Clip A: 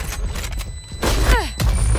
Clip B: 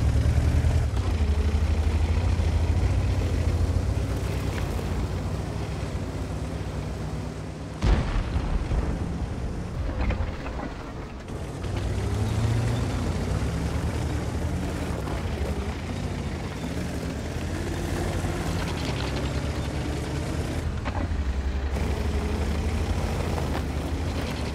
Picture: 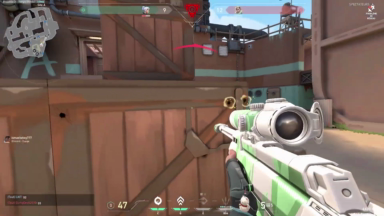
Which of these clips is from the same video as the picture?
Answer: A